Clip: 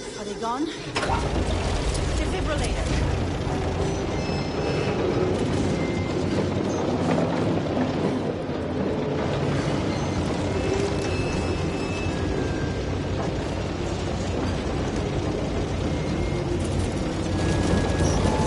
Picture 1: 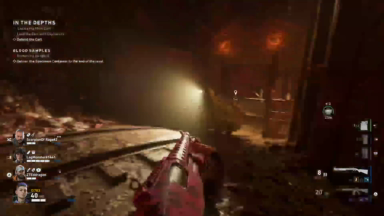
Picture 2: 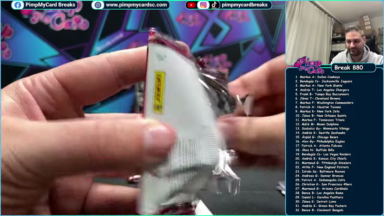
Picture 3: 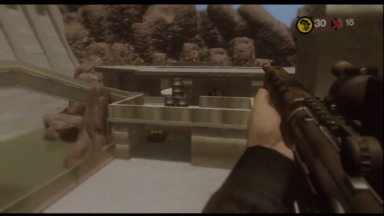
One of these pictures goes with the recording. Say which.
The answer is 1